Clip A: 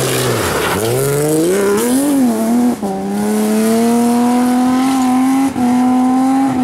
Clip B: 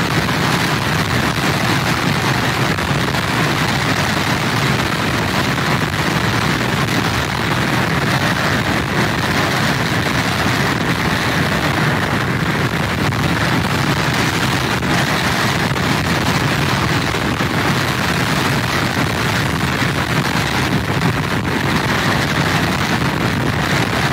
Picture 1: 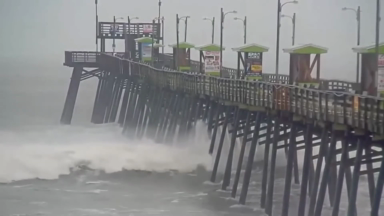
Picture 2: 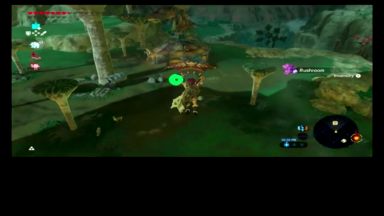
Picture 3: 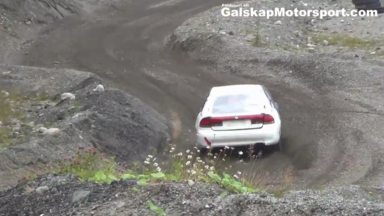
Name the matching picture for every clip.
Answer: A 3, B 1